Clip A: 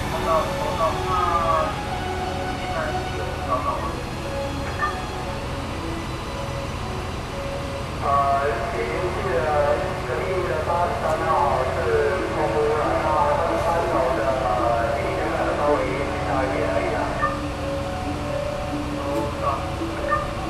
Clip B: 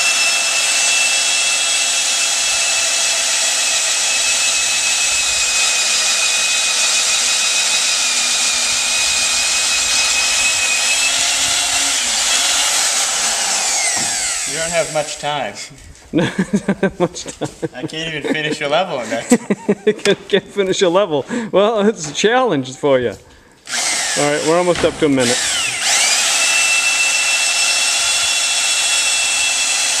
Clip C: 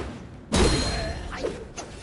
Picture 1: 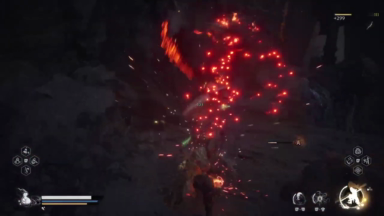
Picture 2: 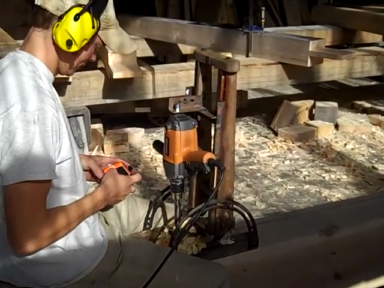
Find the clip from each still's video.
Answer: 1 C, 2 B